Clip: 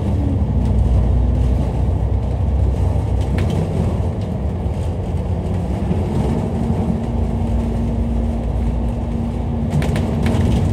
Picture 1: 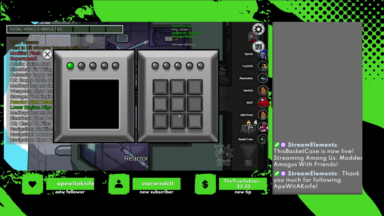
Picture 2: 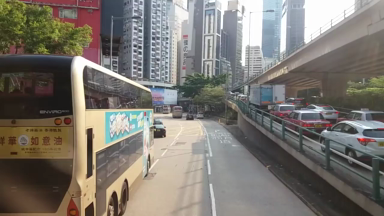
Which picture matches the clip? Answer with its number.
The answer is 2